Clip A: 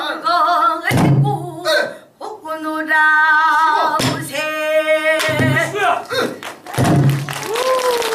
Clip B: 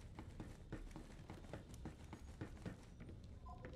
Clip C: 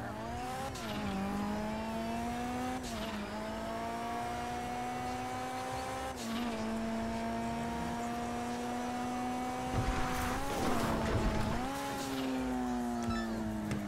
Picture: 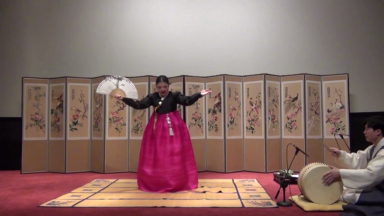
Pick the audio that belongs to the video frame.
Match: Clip A